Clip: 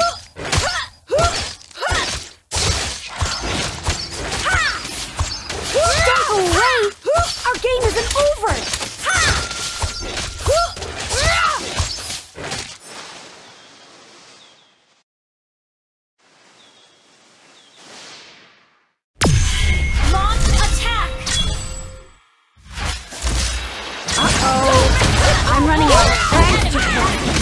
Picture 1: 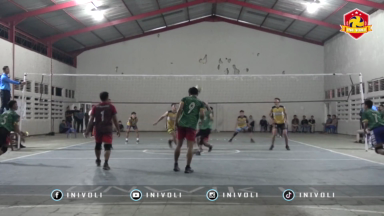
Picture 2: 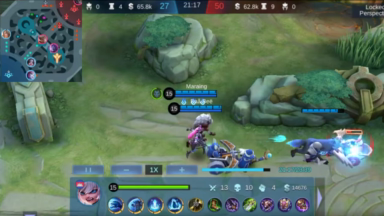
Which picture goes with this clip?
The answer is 2